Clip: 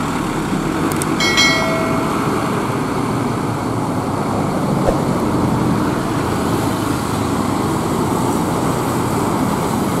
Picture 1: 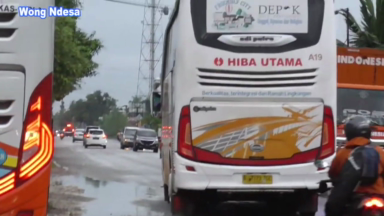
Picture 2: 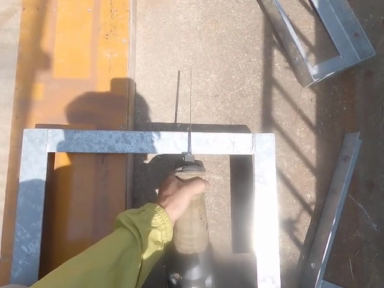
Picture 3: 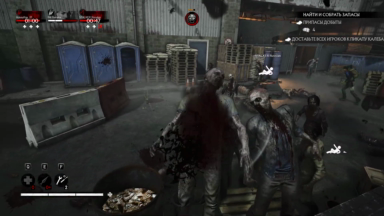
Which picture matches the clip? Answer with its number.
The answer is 1